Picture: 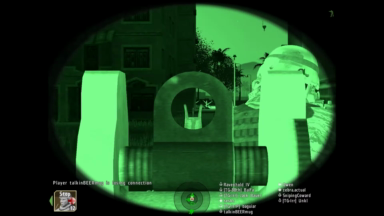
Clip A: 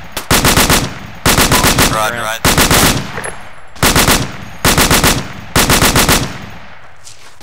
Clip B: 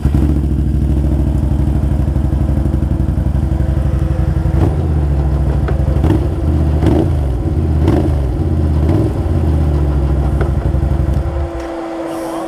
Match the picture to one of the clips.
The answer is A